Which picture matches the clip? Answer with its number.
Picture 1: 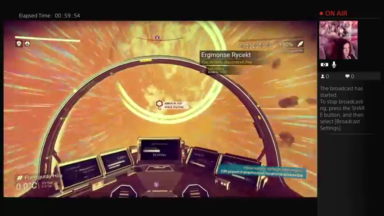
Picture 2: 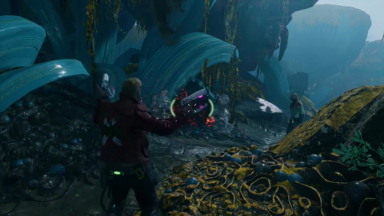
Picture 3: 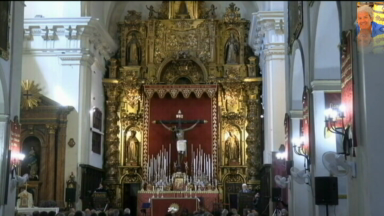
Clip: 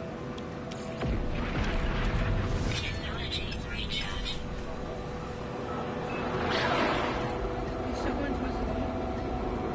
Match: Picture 1